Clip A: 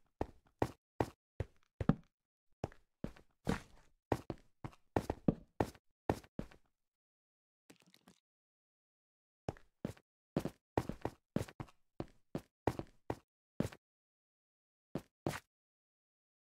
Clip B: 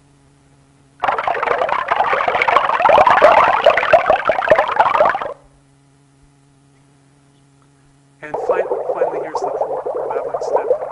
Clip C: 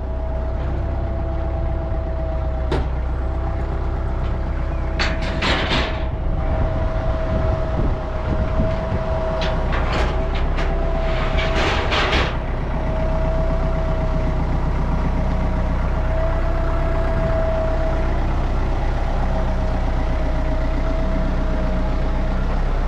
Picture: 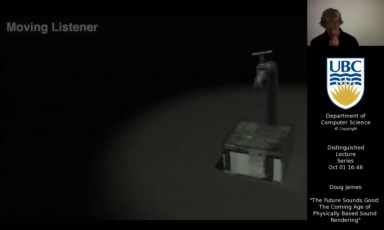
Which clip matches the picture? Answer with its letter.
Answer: B